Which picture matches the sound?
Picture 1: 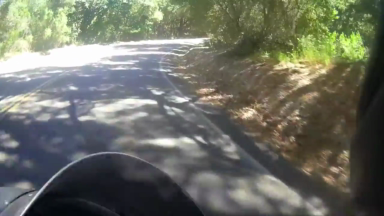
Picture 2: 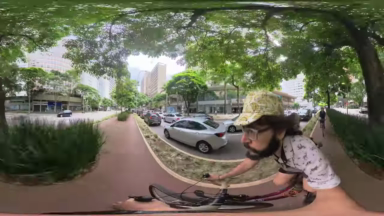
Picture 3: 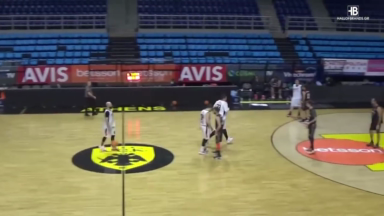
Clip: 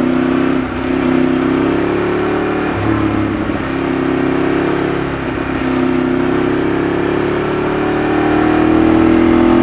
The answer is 1